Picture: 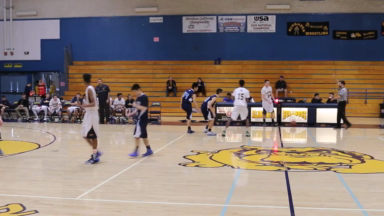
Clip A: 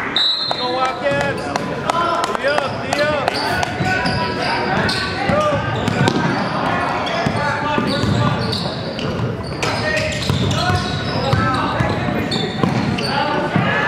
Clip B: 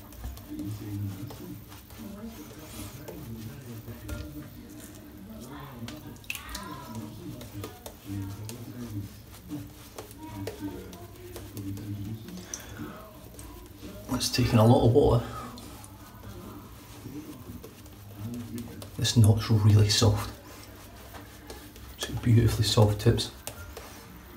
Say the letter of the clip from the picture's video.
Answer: A